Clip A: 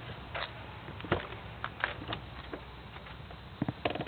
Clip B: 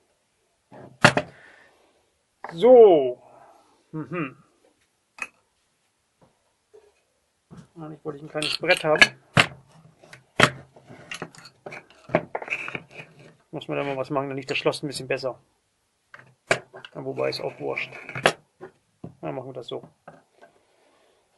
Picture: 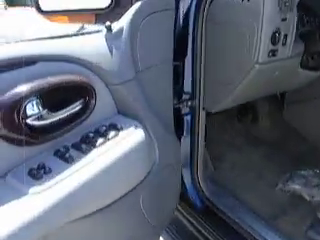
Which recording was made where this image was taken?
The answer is A